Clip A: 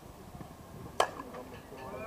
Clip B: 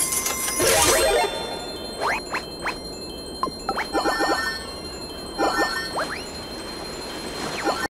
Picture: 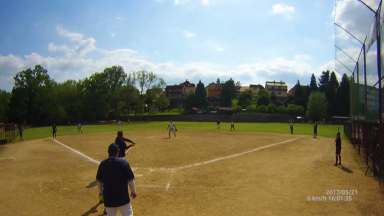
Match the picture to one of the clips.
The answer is A